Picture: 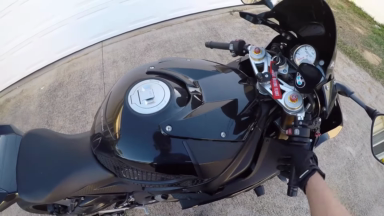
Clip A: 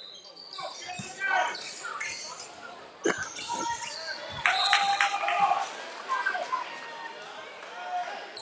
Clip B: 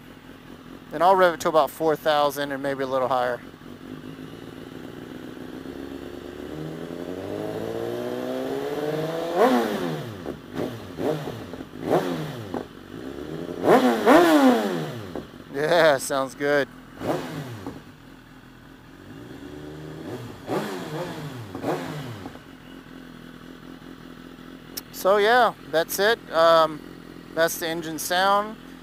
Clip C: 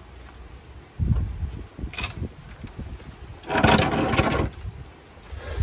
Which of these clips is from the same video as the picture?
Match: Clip B